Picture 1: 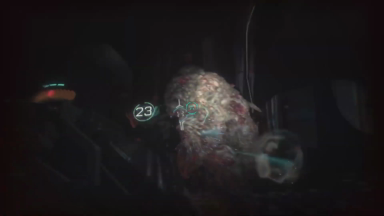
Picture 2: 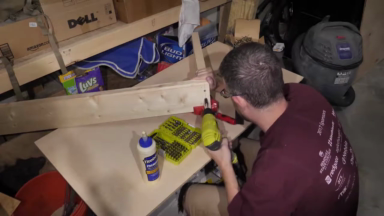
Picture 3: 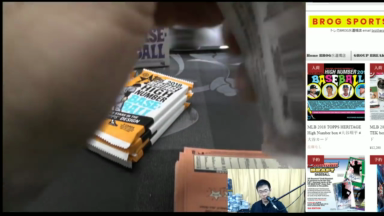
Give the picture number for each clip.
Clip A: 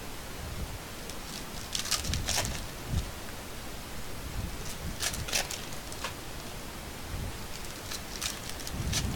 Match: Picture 3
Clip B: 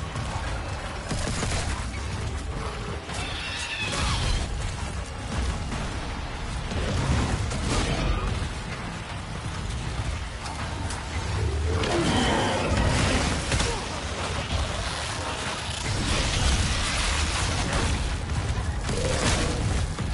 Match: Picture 1